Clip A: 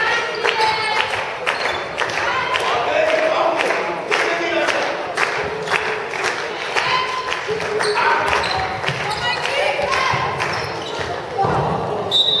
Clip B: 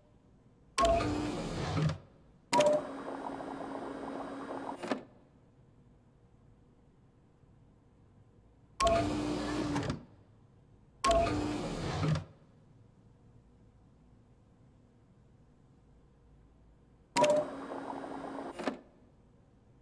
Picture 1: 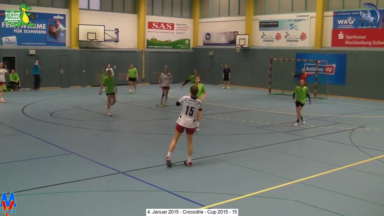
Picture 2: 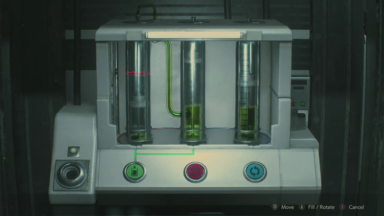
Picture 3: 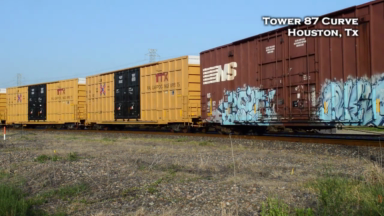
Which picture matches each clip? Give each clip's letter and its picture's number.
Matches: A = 1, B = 2